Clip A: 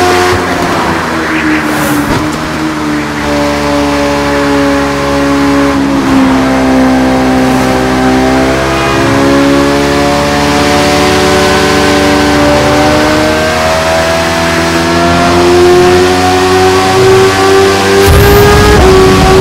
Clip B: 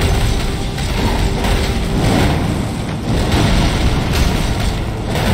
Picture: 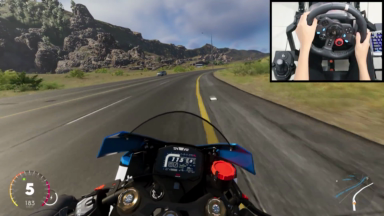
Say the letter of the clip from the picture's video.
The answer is A